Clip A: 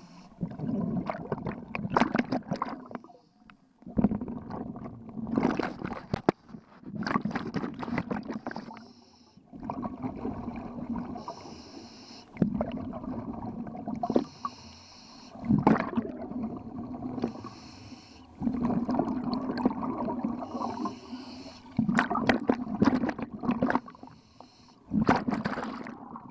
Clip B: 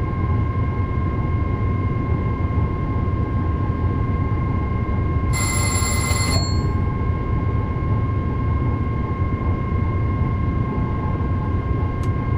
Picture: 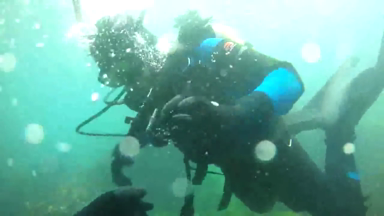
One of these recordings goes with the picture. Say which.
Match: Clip A